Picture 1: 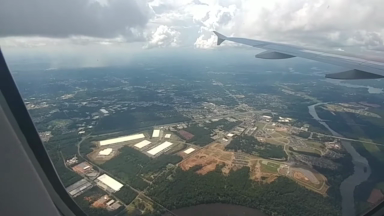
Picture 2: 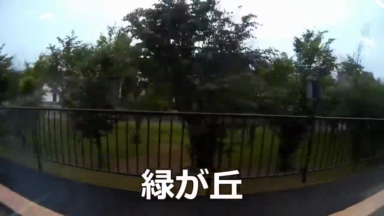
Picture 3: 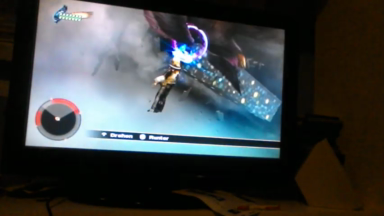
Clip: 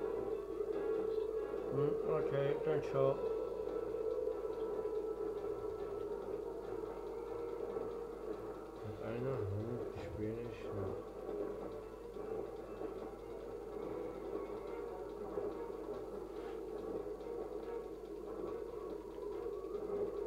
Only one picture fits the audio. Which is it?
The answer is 3